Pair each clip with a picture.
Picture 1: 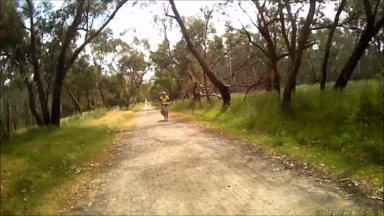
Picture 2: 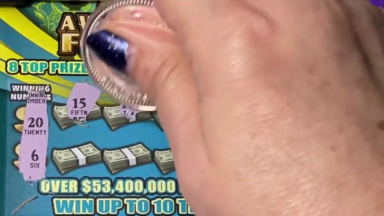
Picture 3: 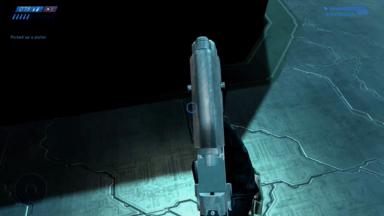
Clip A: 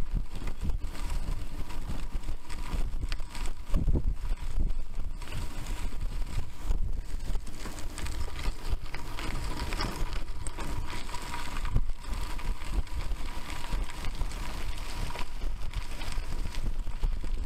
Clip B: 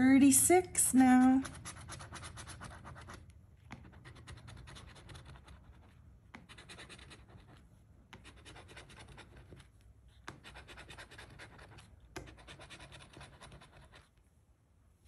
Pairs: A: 1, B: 2